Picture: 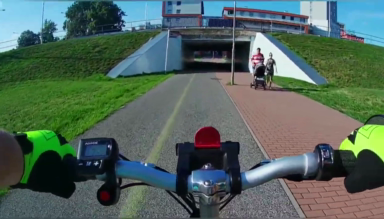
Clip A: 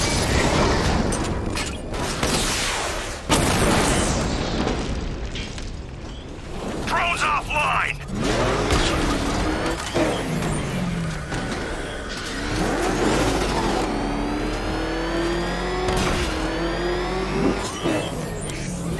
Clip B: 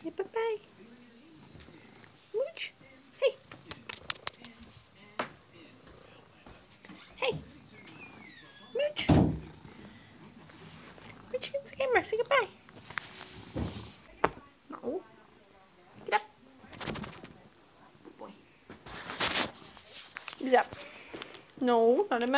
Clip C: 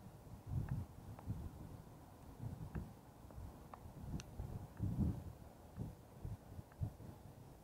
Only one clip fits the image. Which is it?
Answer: C